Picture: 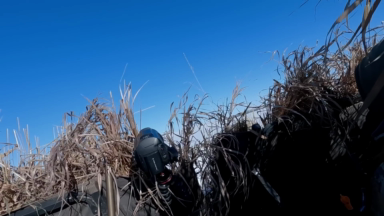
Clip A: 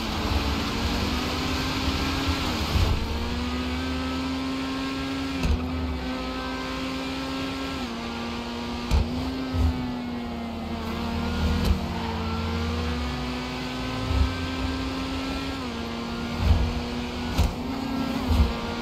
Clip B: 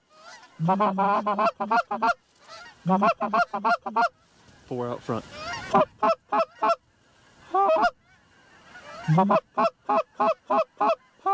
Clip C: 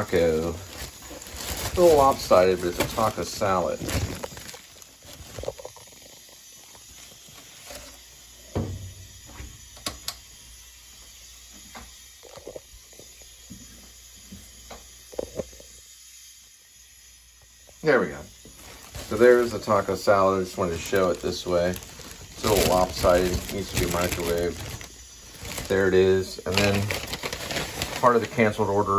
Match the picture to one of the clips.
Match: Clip B